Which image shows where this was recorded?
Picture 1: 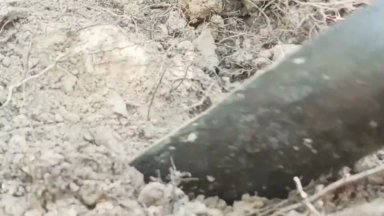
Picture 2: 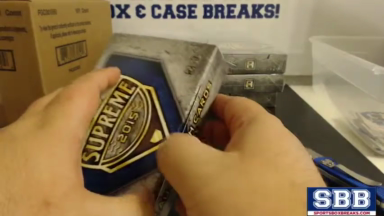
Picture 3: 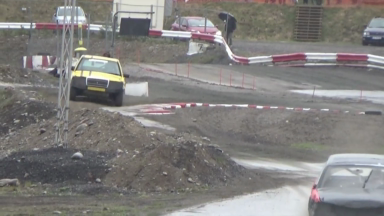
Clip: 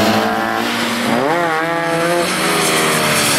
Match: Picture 3